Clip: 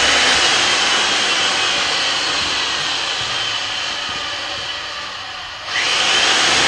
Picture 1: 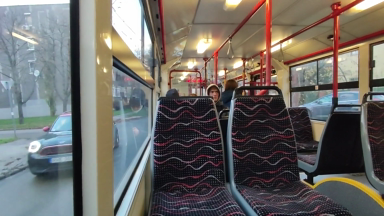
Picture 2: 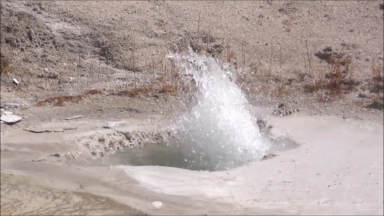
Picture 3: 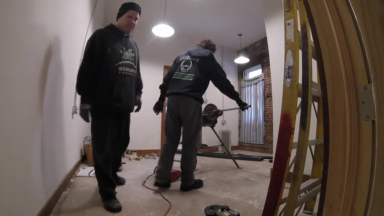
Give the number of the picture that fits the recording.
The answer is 3